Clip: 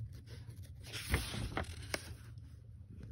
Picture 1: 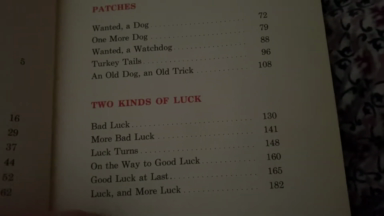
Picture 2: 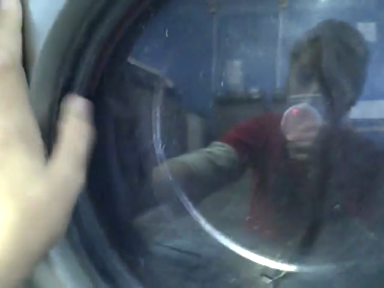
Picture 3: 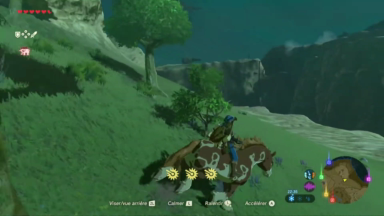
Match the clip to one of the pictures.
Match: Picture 1